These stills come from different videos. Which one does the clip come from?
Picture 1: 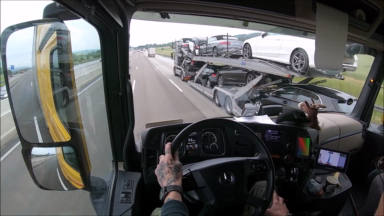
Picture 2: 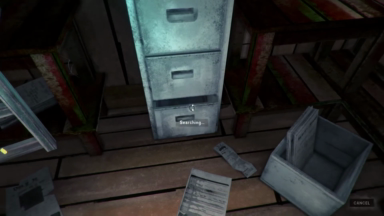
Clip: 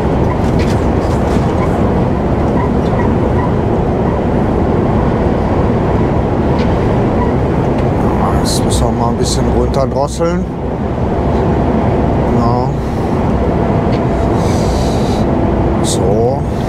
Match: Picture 1